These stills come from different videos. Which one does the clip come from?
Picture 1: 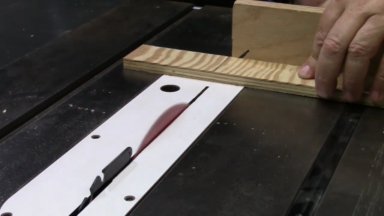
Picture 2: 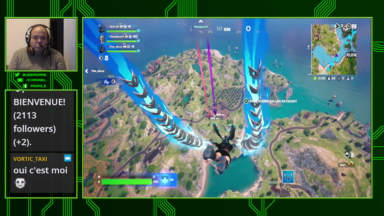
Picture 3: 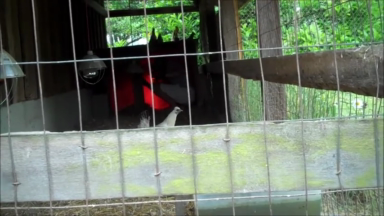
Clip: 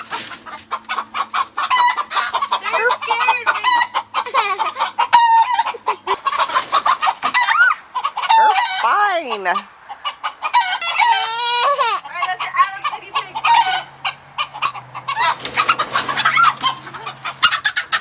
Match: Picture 3